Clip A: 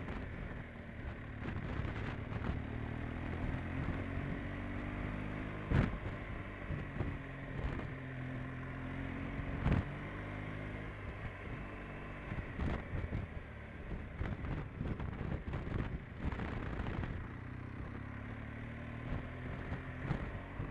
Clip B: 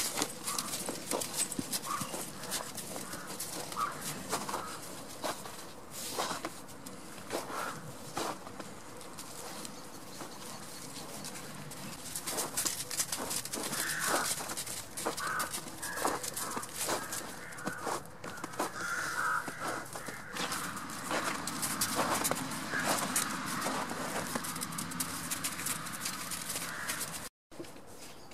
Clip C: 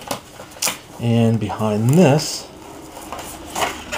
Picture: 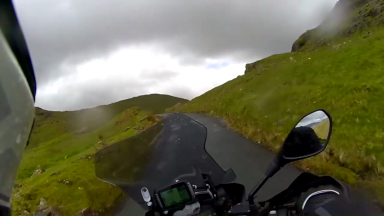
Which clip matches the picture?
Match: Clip A